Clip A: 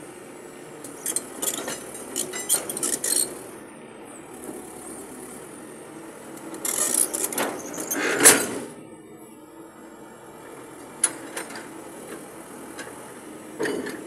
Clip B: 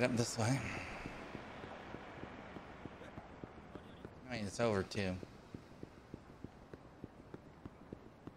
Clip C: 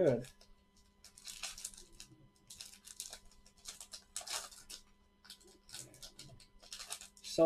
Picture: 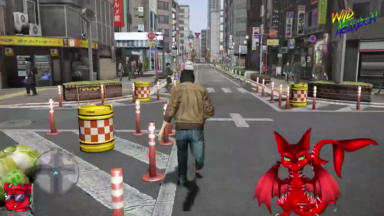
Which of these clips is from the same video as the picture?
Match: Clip B